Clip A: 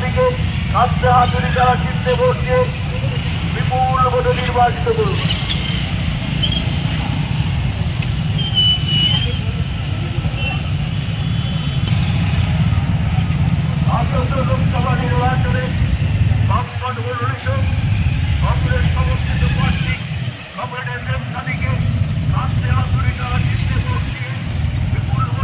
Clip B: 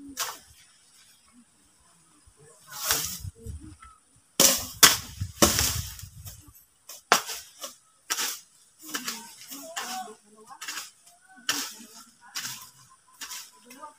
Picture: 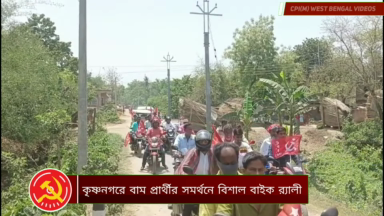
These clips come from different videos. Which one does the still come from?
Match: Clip A